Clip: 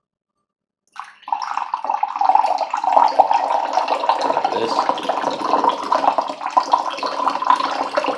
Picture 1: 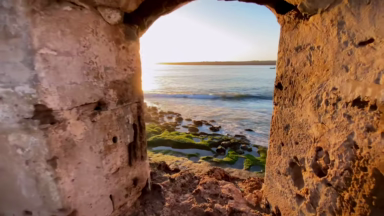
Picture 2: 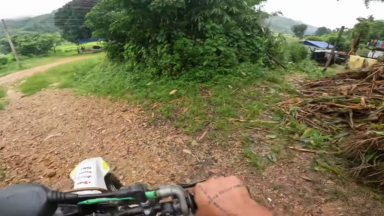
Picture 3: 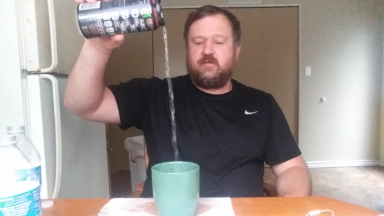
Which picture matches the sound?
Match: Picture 3